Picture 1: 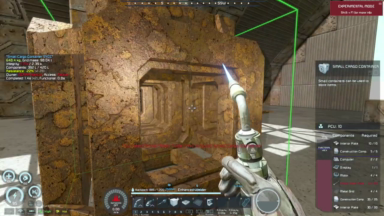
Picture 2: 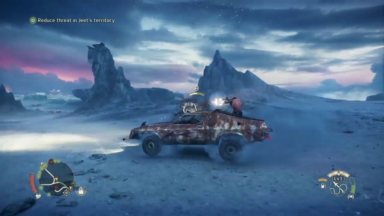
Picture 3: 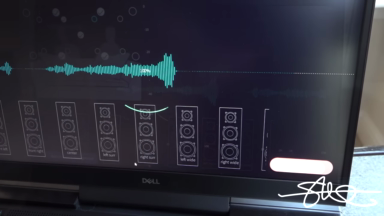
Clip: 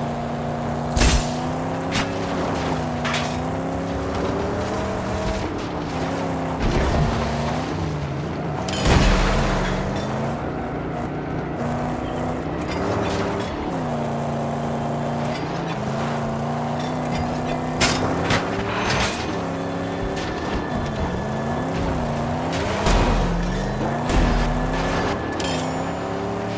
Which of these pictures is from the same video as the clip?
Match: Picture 2